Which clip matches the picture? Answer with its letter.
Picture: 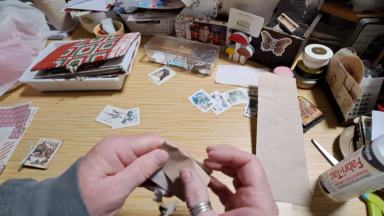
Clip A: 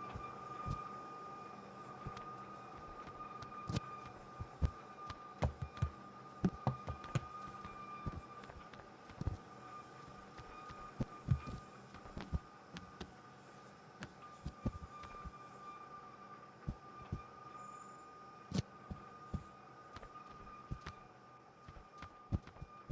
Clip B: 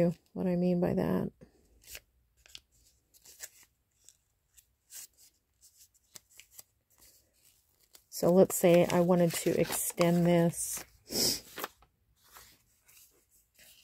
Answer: B